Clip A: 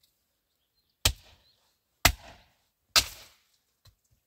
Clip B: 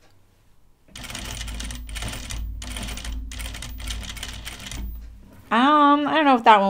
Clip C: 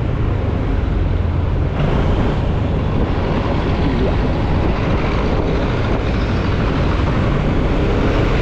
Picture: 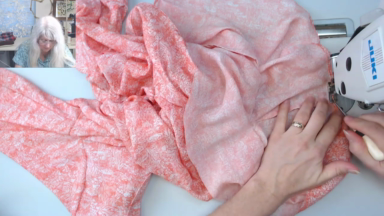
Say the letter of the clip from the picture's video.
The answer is B